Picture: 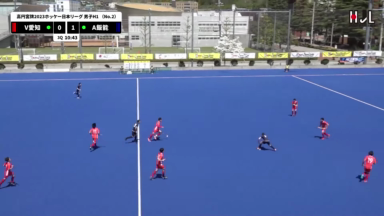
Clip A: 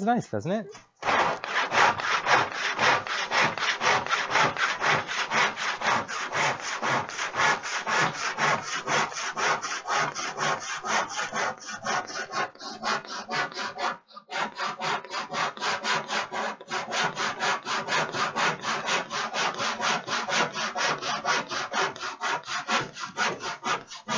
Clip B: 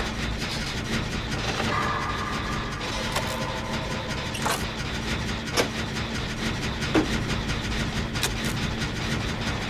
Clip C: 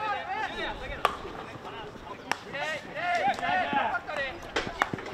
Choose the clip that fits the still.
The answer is C